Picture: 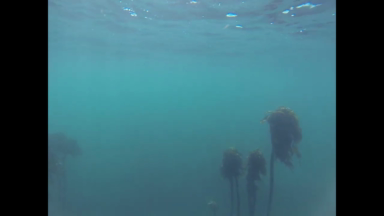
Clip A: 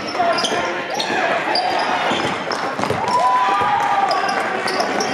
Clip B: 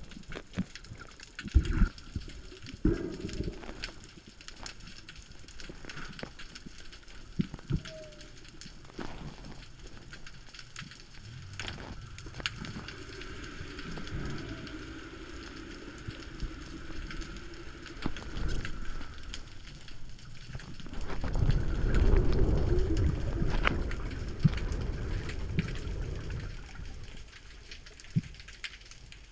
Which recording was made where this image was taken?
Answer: B